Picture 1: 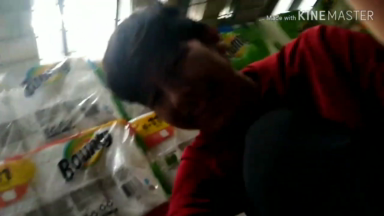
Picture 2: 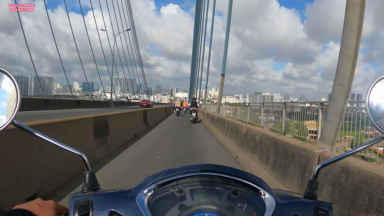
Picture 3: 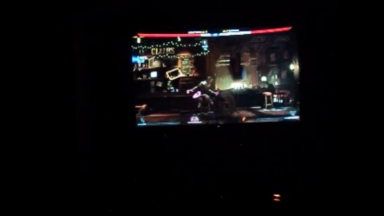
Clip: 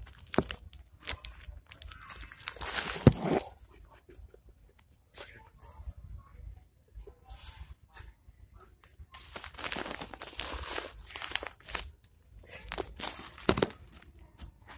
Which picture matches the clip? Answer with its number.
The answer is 1